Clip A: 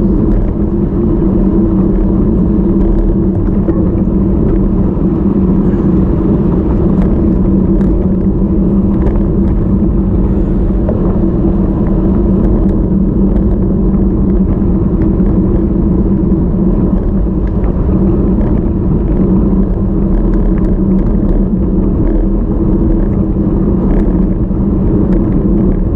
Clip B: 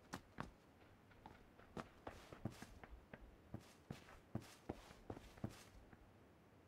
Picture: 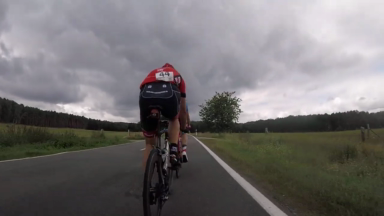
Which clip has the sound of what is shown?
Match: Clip A